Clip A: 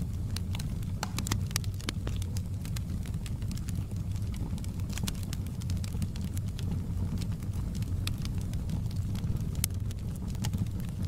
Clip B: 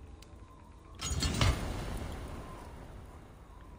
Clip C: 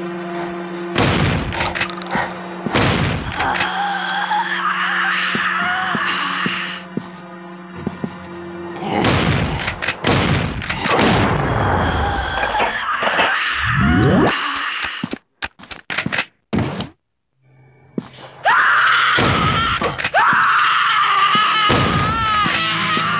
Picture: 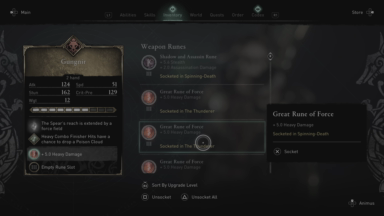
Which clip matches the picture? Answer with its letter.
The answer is B